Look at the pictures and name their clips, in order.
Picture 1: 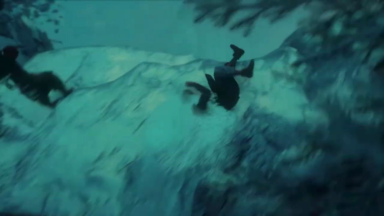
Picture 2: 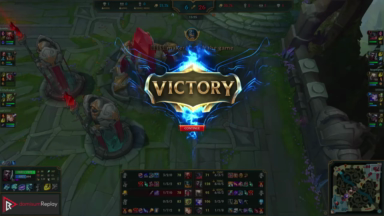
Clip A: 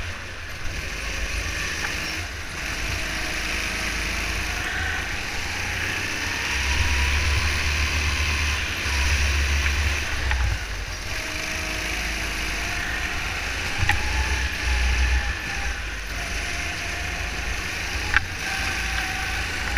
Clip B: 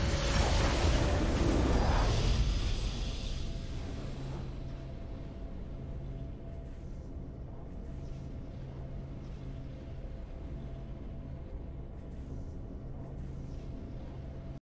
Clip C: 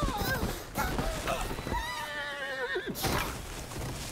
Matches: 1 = C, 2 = B